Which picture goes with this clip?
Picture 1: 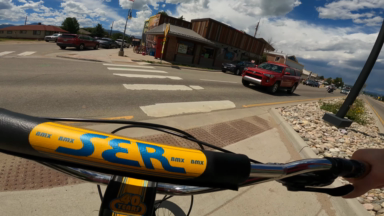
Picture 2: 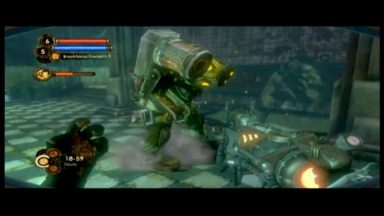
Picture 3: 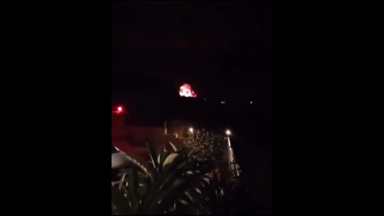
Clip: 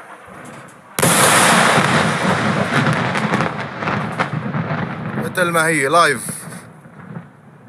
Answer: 3